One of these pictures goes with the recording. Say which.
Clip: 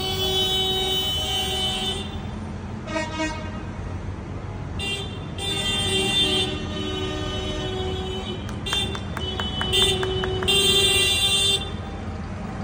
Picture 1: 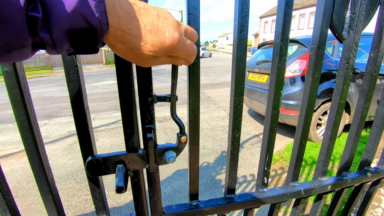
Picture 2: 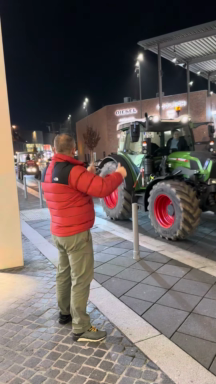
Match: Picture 2